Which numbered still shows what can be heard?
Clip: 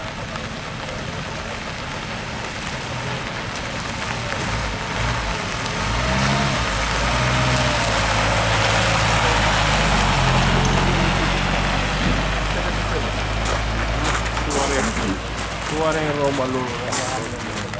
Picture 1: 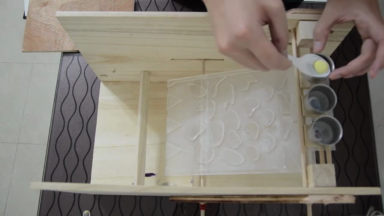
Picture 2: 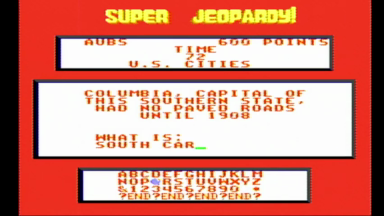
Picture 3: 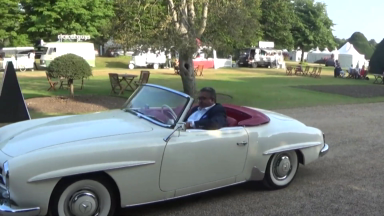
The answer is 3